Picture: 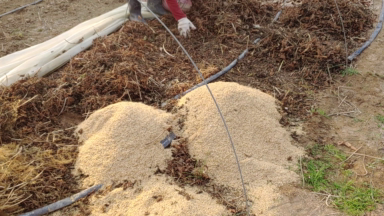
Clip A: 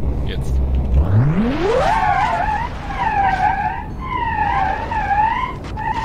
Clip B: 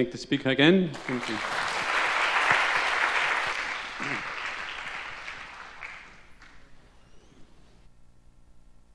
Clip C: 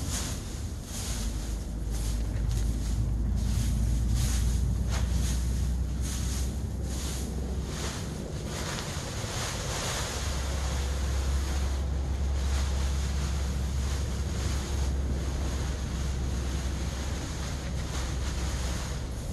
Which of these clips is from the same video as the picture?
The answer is C